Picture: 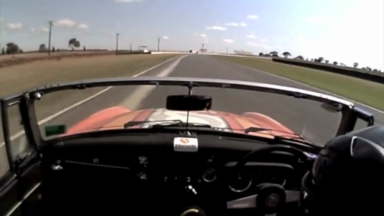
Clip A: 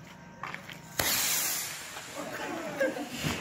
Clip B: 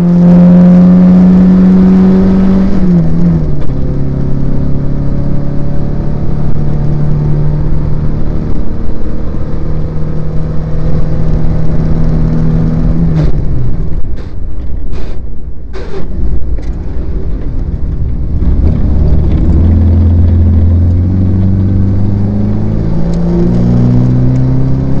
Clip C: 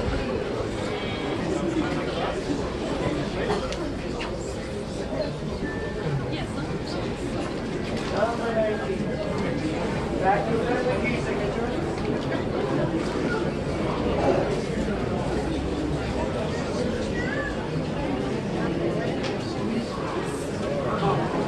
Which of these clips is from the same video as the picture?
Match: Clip B